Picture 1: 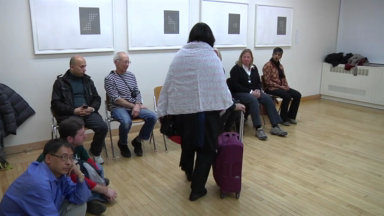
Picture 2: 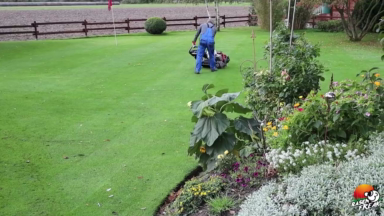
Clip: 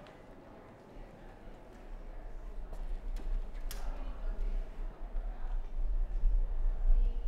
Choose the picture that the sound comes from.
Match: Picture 1